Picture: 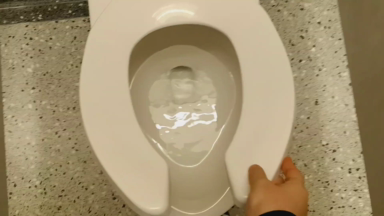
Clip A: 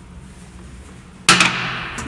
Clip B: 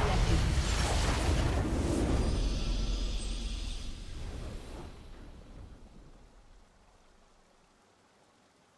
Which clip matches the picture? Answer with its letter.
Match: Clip A